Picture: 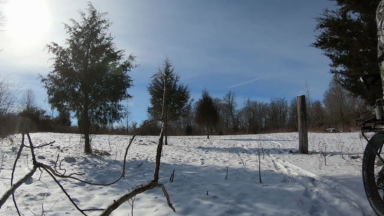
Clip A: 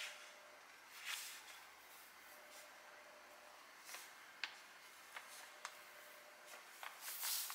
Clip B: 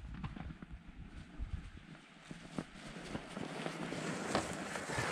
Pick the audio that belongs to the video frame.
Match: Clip B